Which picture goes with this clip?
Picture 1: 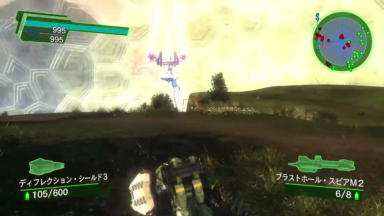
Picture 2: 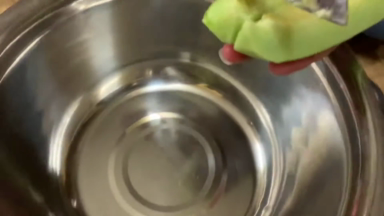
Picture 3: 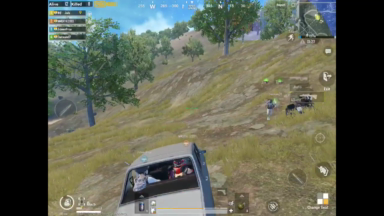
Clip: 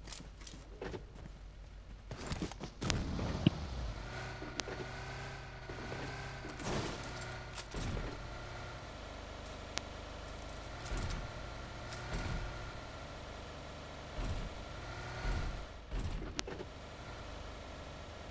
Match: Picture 3